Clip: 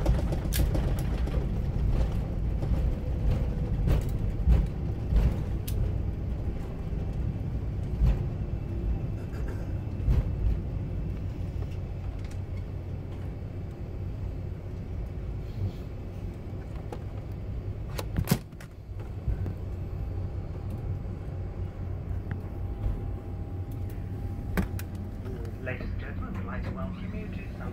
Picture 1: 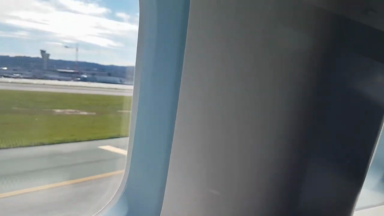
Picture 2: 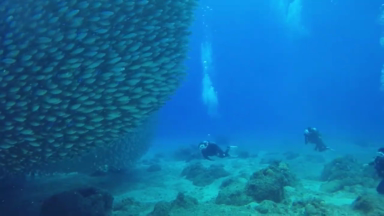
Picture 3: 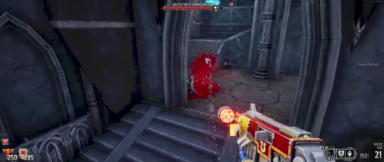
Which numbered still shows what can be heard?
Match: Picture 1